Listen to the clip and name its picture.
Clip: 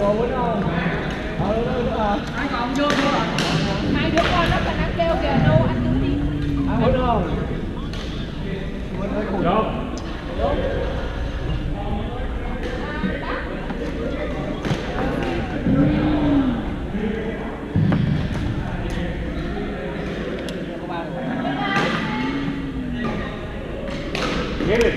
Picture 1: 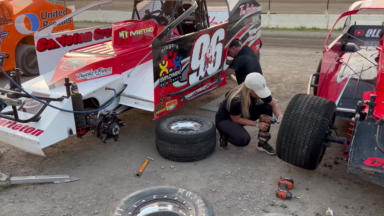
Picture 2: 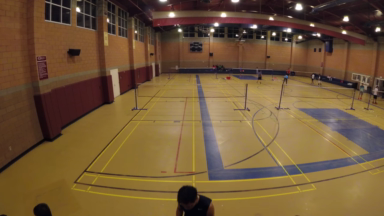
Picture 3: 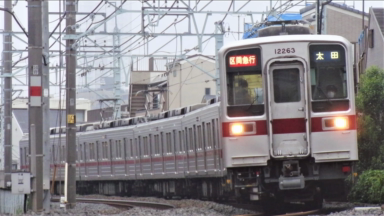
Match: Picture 2